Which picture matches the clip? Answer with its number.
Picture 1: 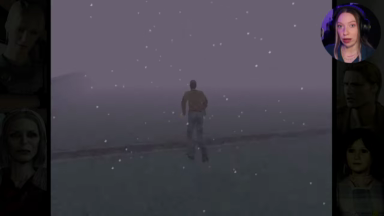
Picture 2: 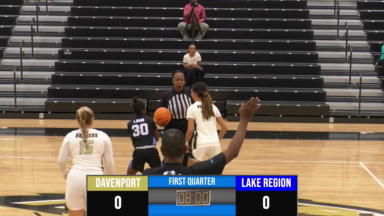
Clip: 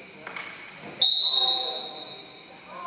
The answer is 2